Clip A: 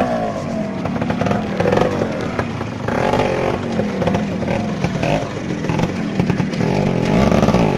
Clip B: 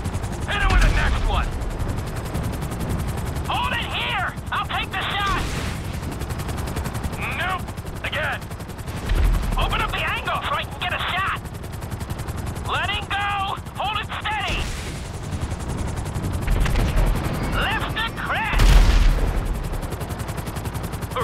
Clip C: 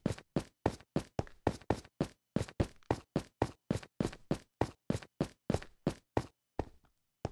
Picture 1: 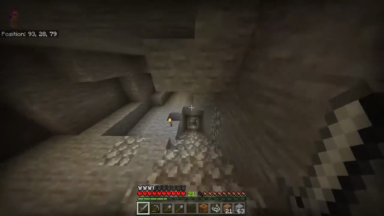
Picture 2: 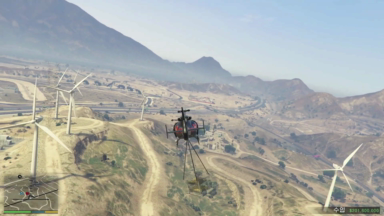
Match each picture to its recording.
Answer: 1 C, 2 B